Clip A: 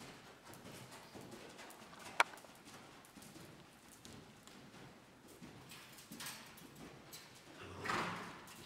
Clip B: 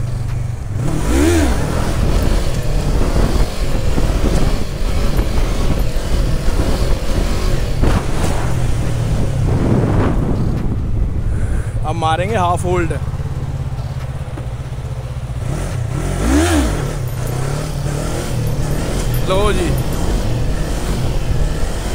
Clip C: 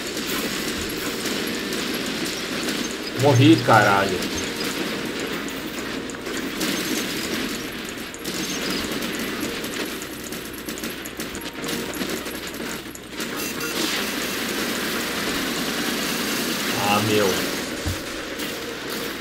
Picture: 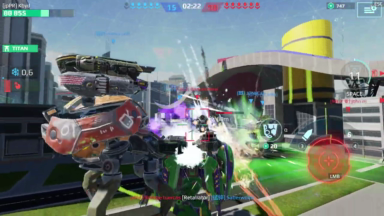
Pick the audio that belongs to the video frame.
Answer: C